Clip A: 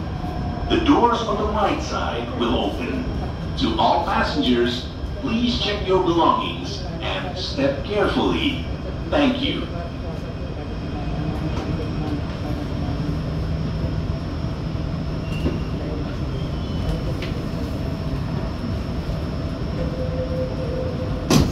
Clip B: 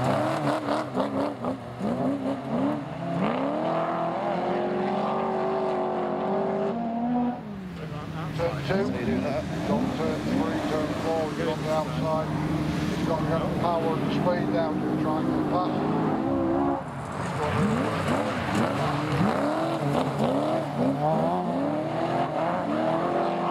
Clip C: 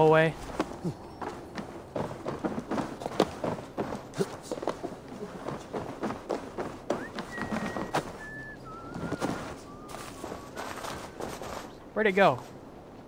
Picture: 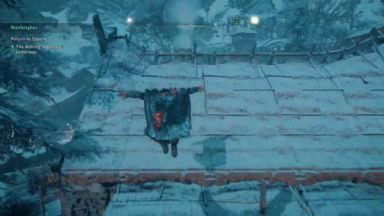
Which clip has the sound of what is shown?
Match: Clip C